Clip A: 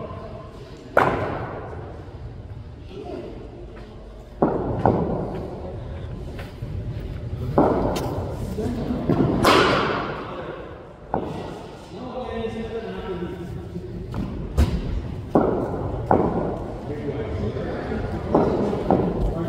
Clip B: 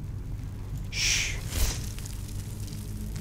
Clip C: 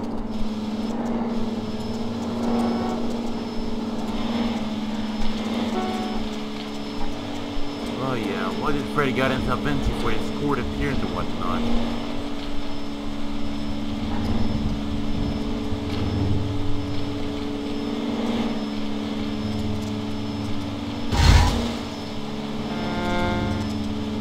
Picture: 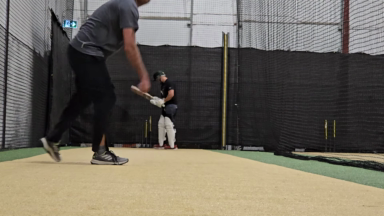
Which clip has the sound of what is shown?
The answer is A